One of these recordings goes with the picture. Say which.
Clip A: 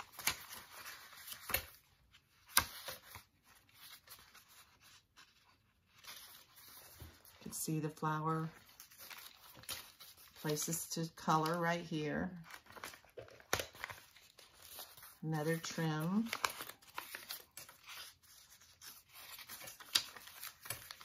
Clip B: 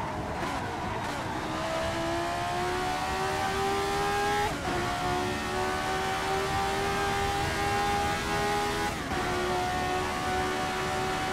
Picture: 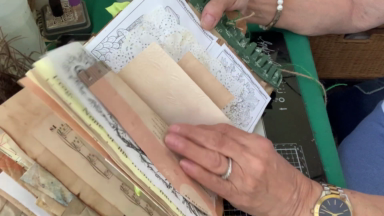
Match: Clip A